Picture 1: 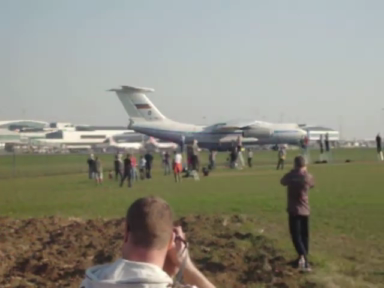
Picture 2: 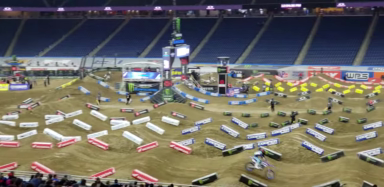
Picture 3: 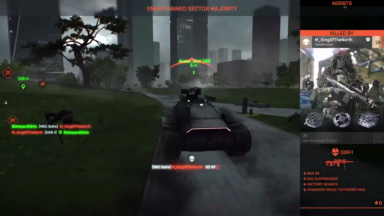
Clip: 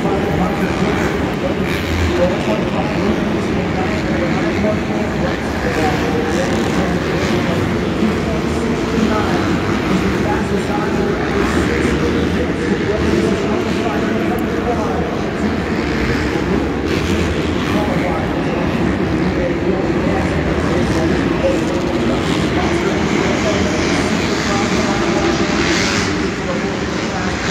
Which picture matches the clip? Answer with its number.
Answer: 2